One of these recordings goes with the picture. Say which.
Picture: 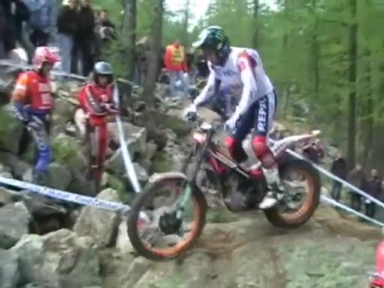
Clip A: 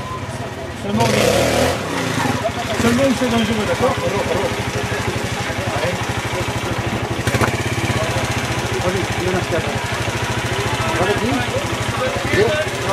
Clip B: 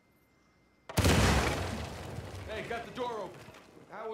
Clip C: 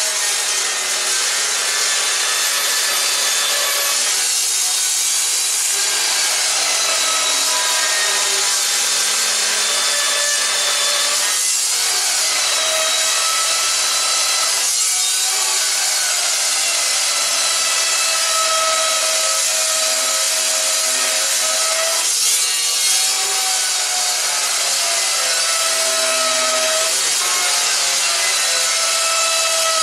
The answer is A